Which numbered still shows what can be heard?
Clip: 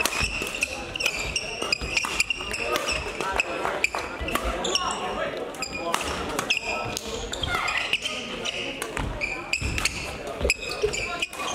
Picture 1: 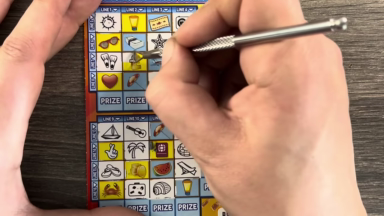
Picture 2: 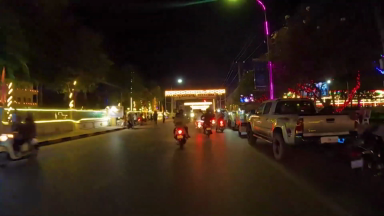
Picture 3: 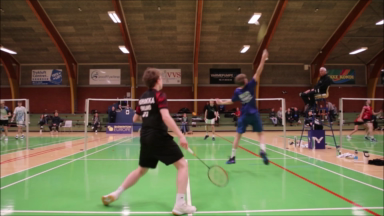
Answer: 3